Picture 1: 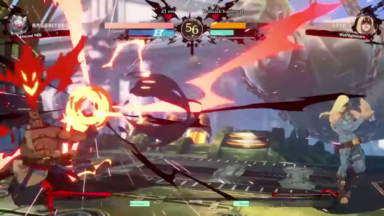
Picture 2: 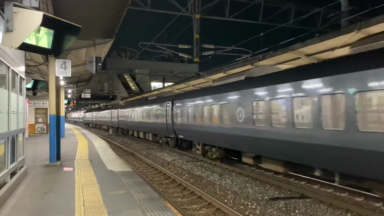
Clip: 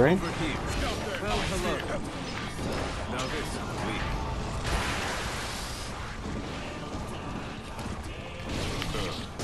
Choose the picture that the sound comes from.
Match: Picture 1